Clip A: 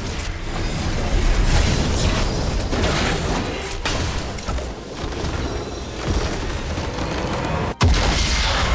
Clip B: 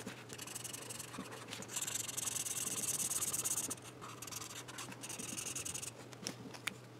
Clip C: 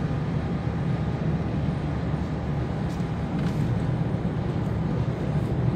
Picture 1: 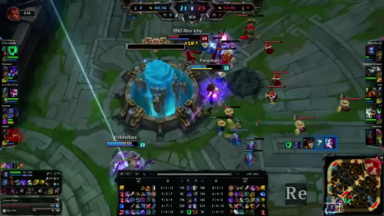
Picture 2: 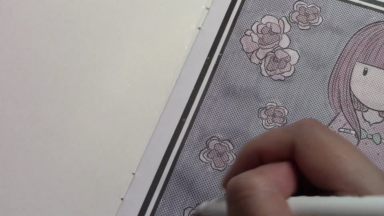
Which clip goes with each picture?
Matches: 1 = A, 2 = B